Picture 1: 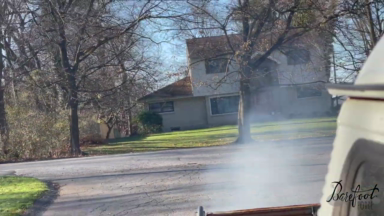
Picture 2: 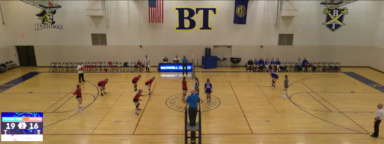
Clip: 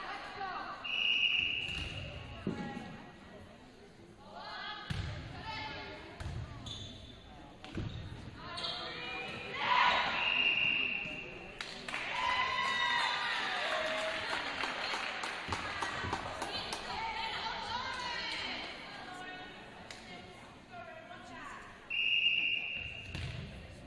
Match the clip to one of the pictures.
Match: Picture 2